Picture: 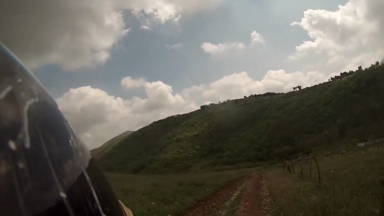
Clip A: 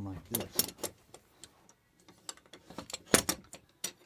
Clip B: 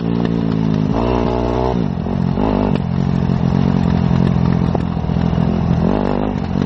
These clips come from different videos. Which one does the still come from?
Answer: B